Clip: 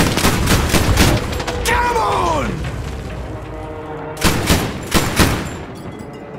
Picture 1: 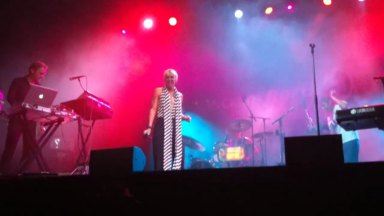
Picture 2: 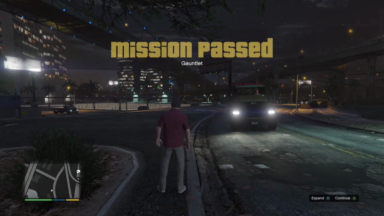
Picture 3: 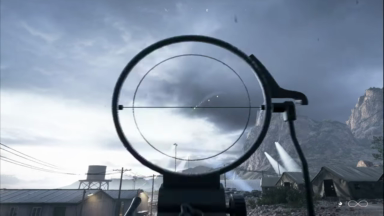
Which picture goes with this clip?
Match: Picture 3